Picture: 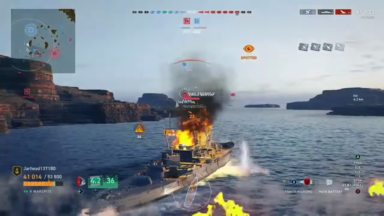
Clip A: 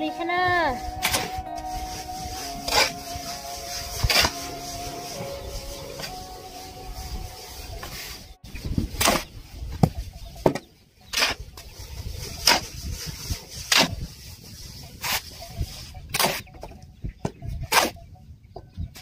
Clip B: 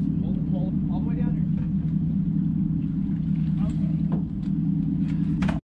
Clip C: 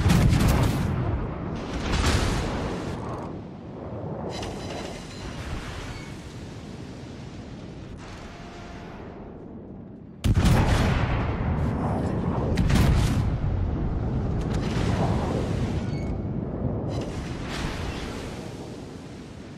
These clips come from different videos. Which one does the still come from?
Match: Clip C